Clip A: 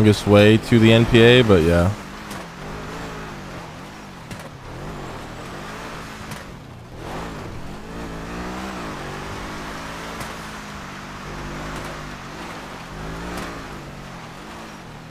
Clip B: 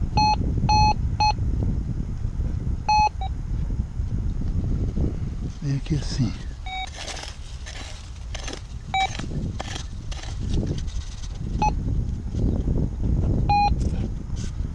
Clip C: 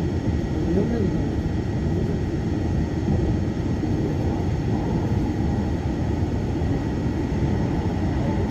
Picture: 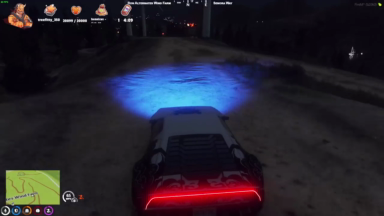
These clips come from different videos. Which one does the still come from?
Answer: A